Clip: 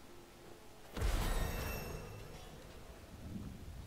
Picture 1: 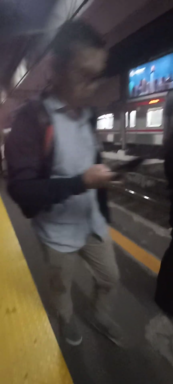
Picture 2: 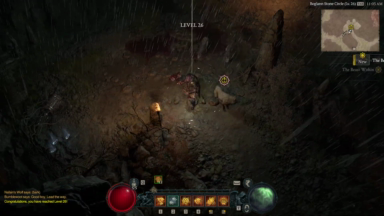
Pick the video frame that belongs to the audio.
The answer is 2